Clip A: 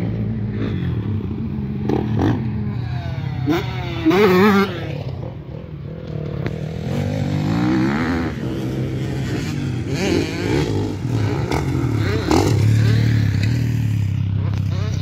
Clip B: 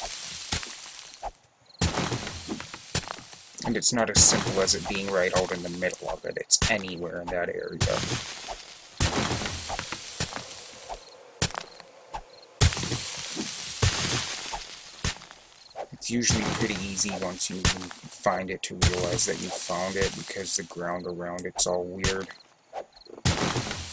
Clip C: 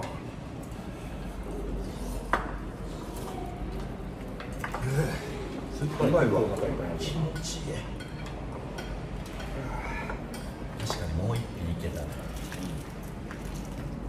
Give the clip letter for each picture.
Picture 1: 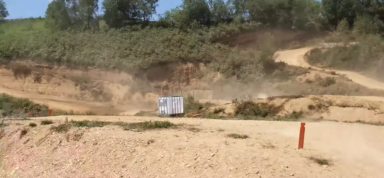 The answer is A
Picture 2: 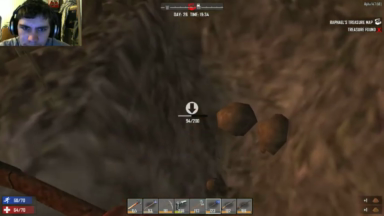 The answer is B